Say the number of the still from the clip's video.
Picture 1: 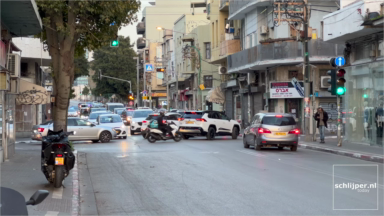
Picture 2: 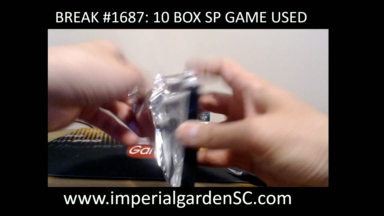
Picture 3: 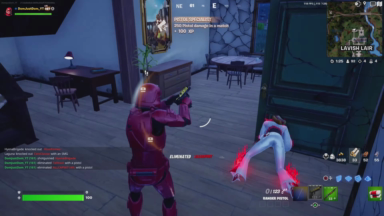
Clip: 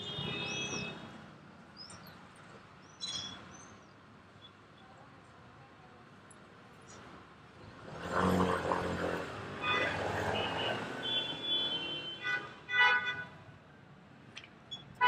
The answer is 1